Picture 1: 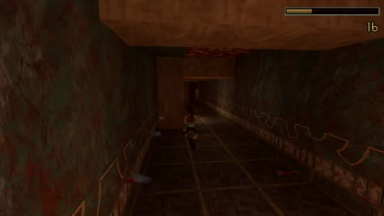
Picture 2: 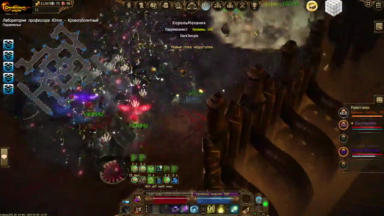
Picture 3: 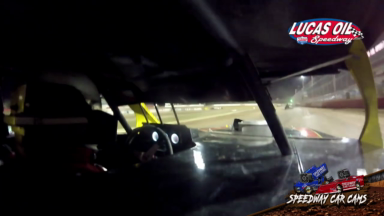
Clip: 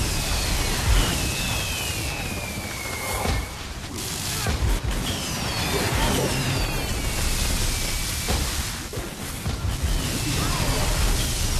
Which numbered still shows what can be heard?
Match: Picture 2